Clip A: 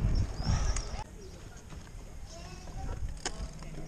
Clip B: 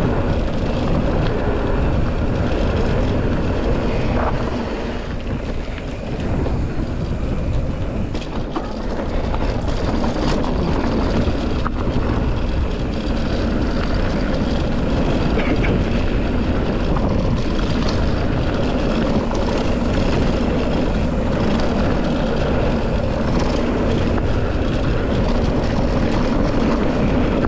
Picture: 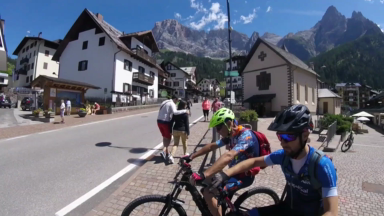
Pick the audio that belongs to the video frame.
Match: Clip A